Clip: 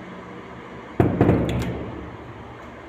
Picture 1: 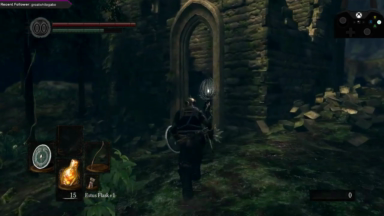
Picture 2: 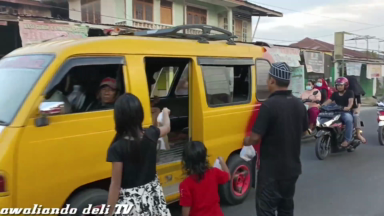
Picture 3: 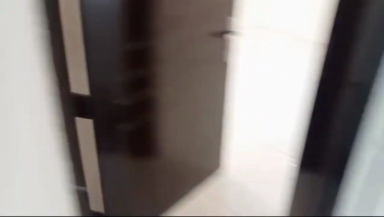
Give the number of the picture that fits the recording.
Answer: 3